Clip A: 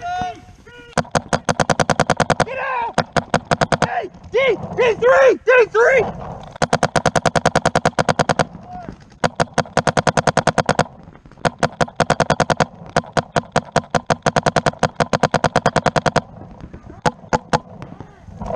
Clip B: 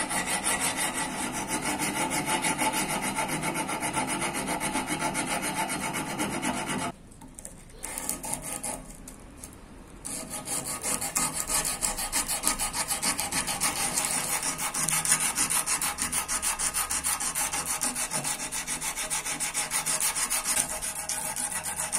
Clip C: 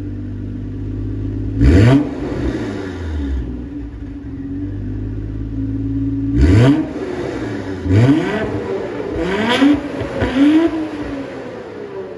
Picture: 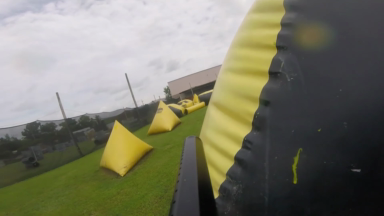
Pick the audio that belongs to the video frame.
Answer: A